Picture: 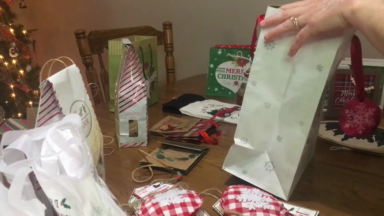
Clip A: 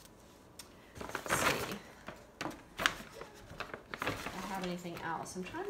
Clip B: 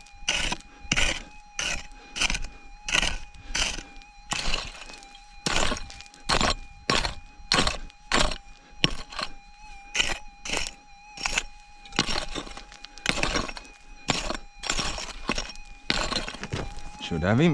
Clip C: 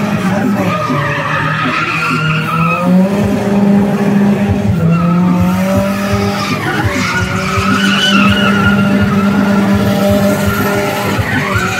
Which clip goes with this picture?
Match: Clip A